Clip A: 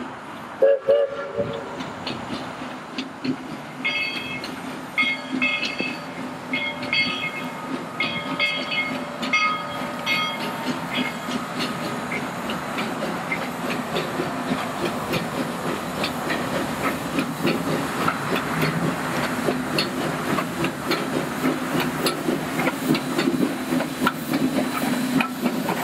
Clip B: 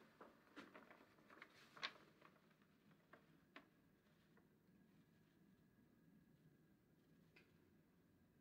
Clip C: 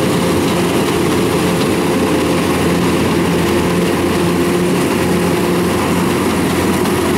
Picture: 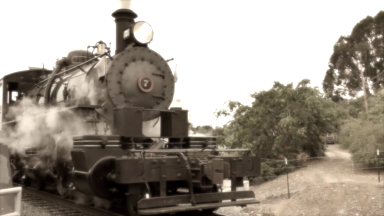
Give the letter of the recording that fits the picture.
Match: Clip A